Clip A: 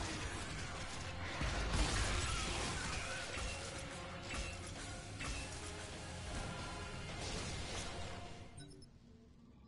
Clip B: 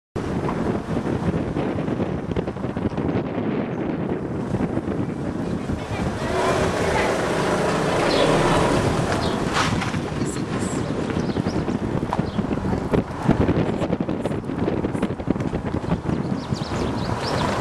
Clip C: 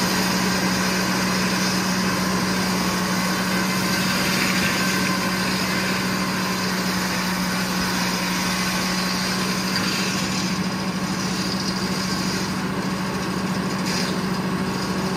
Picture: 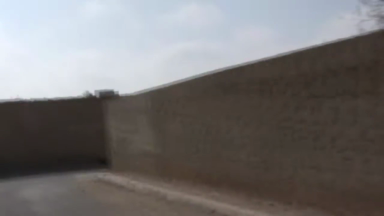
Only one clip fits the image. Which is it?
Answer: B